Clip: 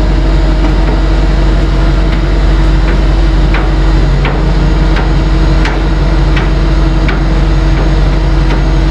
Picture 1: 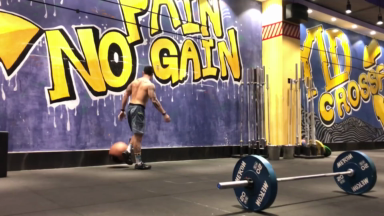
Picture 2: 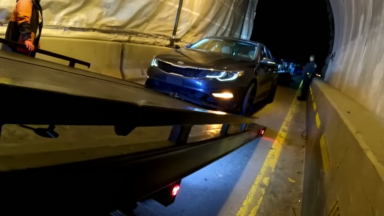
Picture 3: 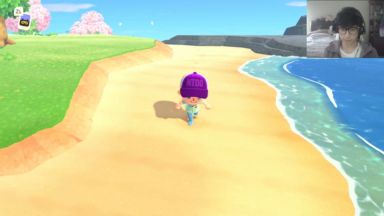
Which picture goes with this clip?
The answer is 2